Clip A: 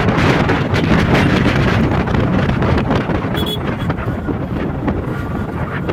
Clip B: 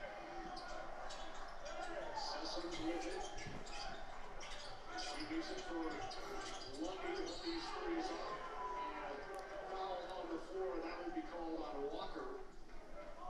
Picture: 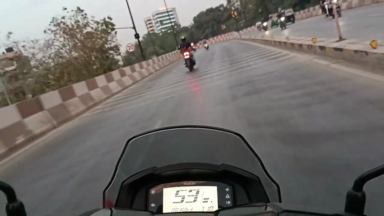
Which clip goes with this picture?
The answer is A